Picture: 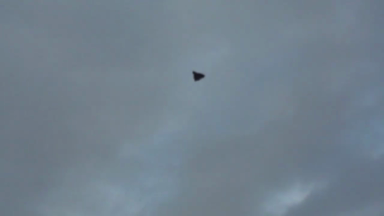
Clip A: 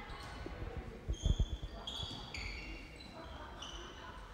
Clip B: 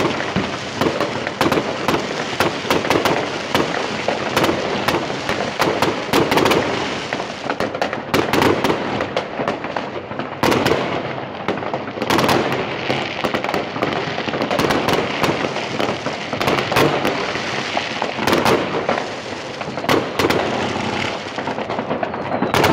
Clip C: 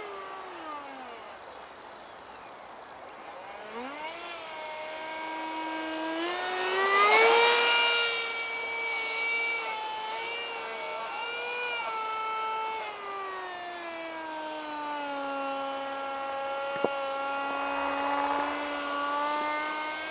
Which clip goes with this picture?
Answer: C